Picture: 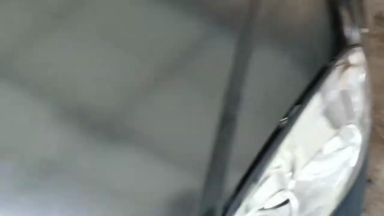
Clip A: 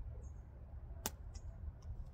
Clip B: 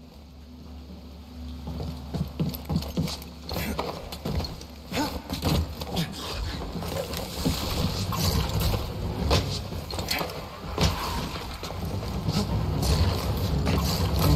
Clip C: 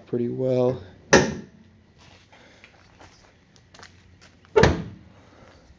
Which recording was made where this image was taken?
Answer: C